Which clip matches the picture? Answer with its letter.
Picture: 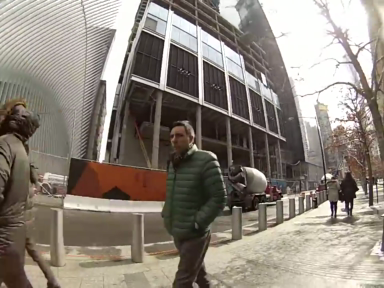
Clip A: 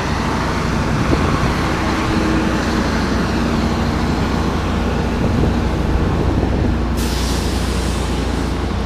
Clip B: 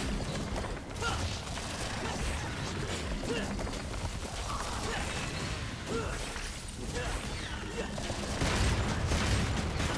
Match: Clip A